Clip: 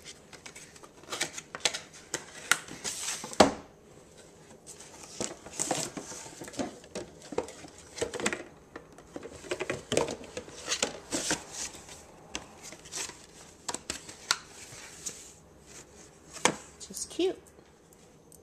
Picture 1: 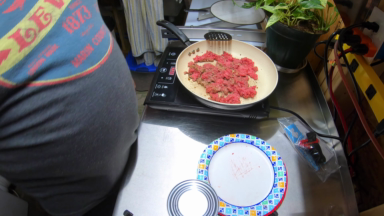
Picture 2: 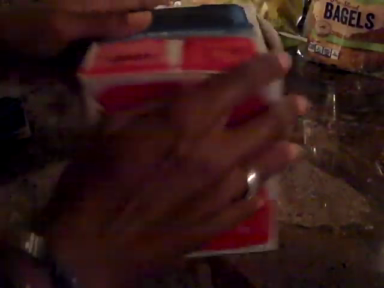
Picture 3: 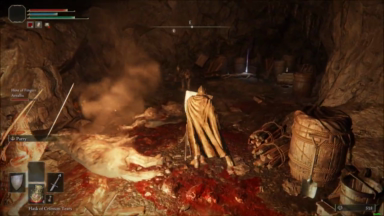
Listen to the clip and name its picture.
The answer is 2